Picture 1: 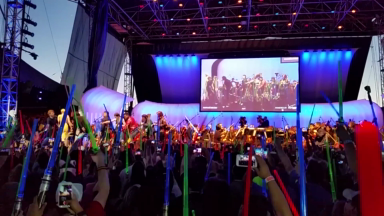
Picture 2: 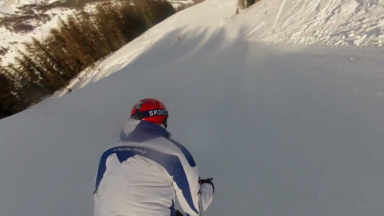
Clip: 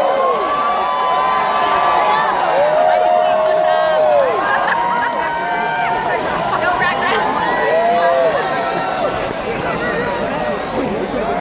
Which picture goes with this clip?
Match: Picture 1